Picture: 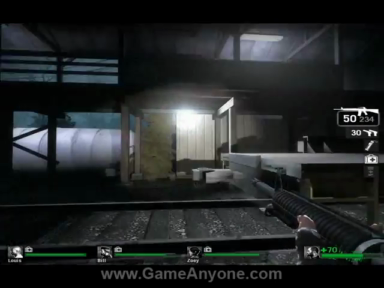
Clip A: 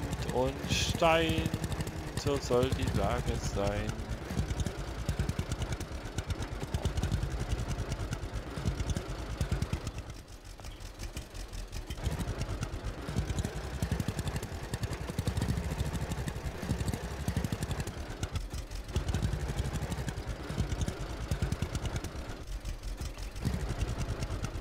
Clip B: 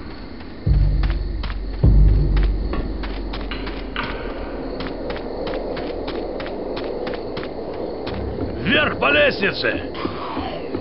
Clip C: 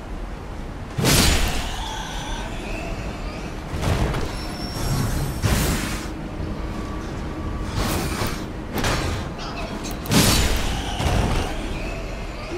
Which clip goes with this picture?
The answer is B